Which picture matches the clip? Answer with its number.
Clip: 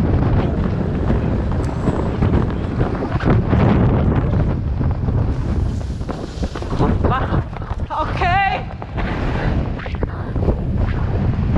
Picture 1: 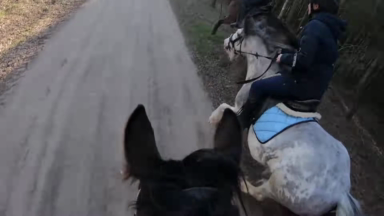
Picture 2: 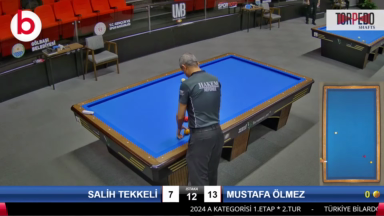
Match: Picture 1